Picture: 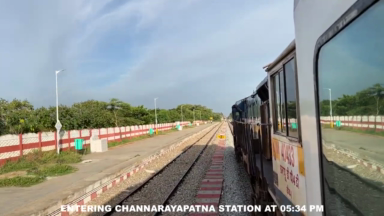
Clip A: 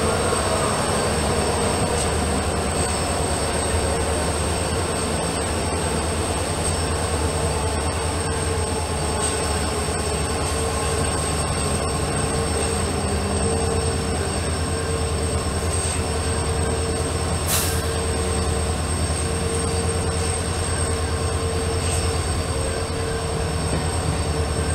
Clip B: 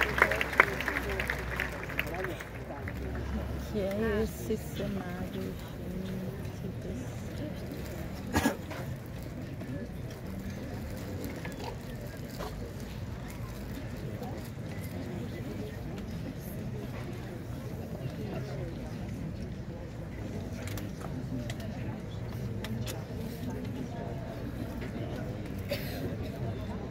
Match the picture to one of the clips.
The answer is A